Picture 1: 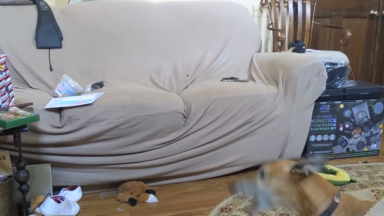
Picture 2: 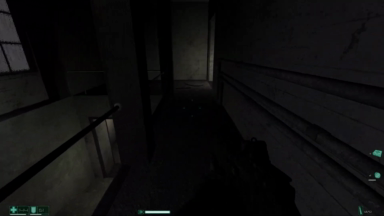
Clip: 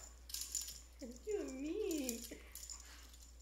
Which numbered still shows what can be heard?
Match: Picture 1